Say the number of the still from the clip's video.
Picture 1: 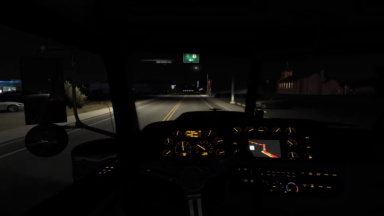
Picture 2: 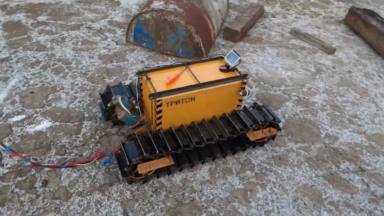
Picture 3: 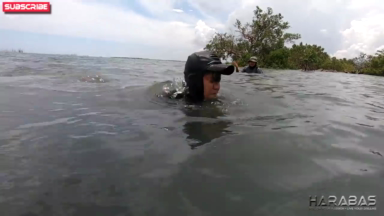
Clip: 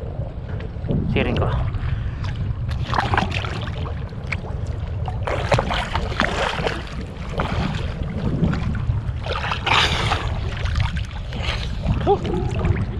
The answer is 3